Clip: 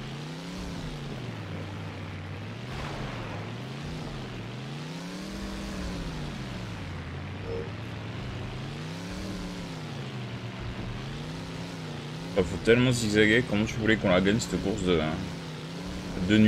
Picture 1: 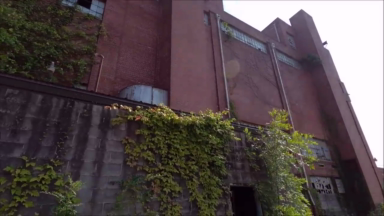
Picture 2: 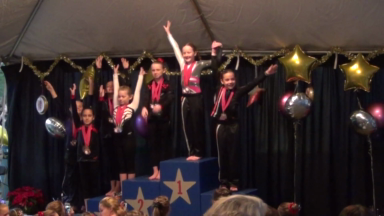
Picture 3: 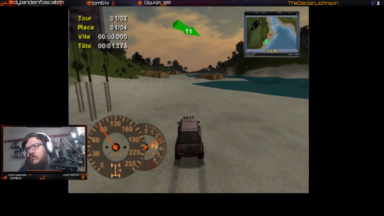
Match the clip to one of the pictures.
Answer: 3